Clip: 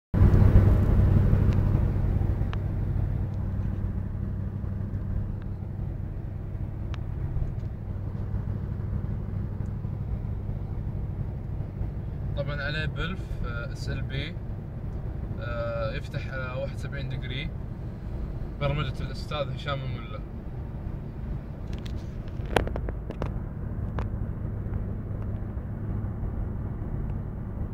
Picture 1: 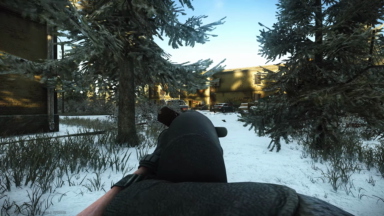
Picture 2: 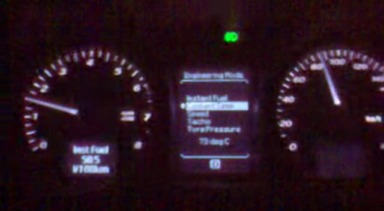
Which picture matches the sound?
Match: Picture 2